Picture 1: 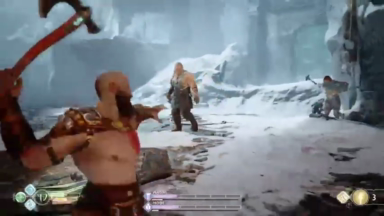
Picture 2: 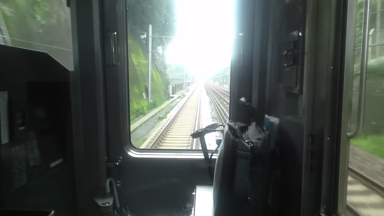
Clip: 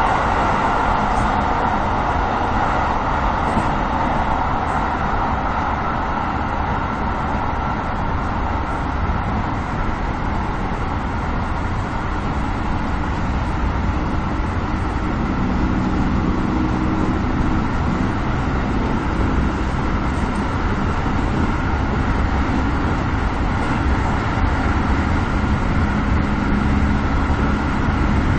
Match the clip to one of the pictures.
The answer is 2